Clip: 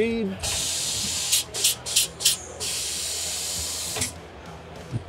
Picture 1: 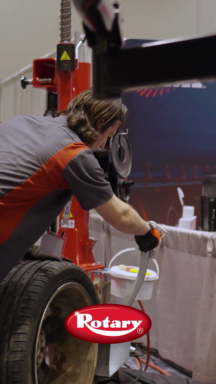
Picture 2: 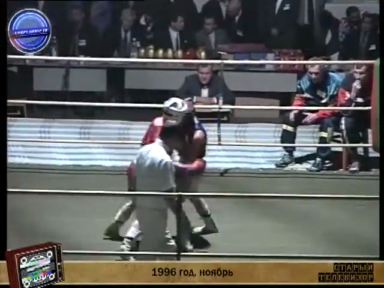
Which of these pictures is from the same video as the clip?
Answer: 1